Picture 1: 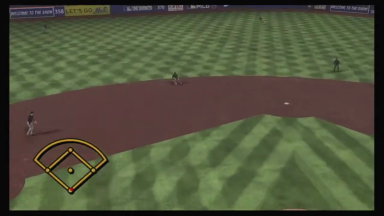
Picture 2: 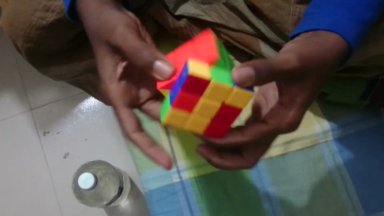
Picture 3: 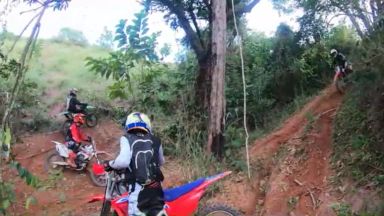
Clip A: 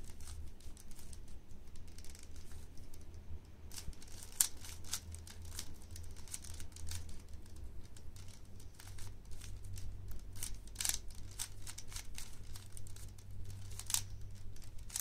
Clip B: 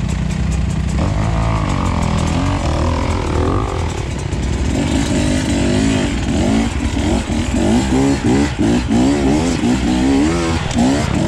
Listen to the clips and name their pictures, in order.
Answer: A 2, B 3